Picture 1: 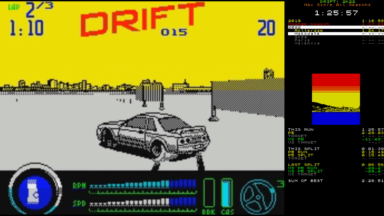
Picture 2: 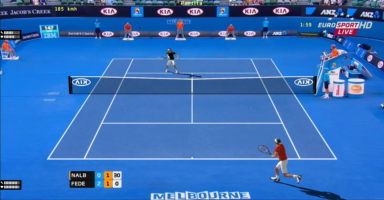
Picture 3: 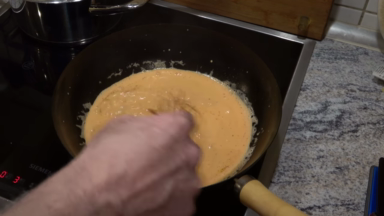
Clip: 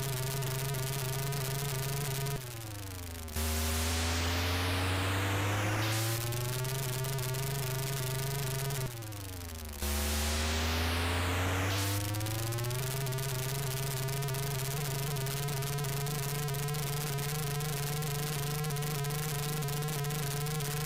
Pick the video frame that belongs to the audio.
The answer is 1